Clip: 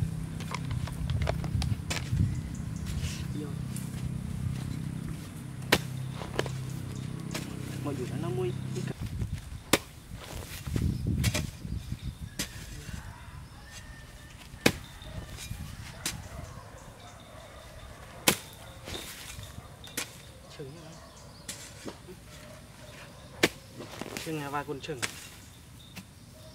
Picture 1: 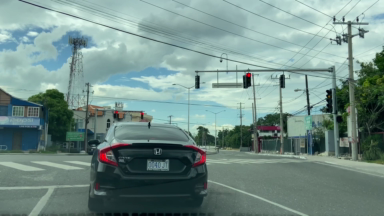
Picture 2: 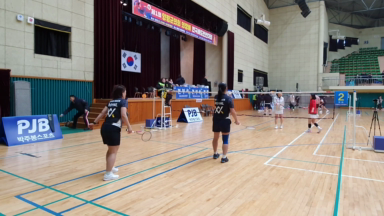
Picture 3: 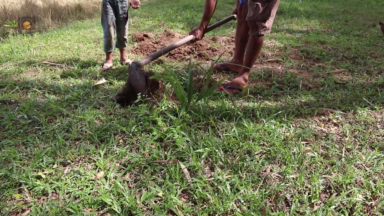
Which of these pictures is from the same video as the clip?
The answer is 3